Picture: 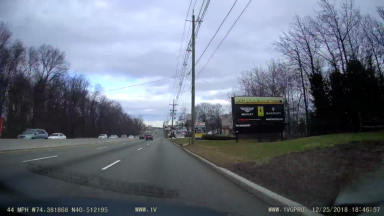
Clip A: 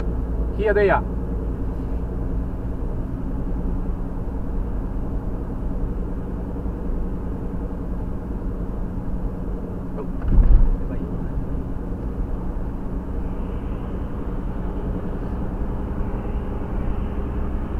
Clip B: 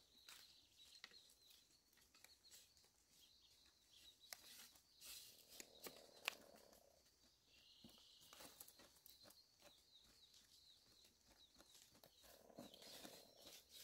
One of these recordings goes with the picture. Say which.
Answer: A